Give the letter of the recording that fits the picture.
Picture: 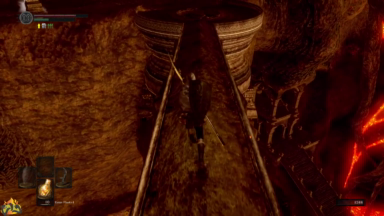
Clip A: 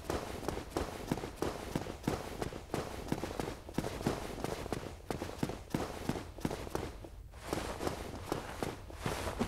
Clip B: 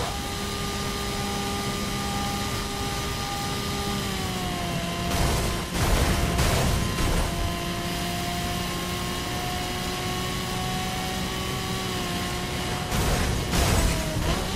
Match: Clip A